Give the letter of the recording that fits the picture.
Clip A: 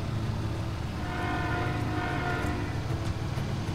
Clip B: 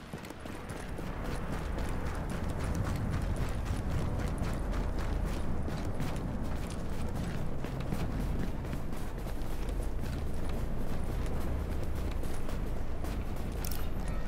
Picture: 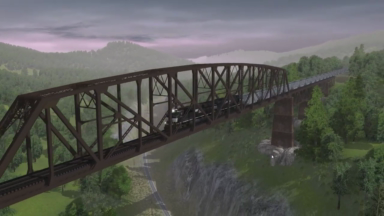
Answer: A